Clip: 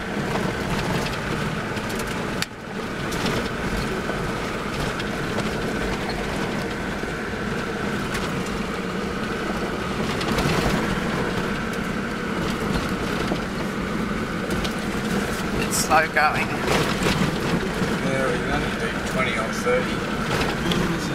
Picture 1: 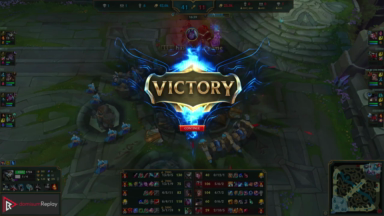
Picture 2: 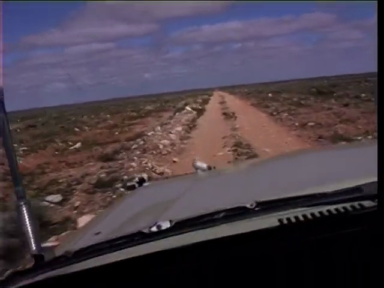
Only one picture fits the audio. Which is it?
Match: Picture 2